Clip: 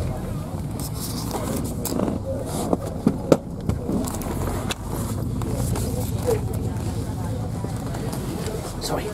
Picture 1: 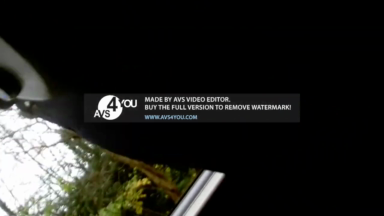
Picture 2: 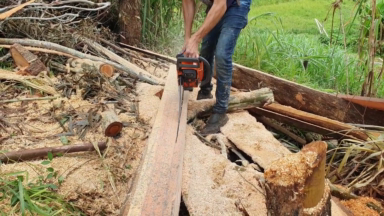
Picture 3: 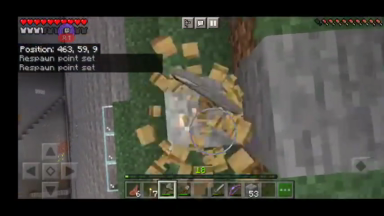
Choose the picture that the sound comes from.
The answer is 1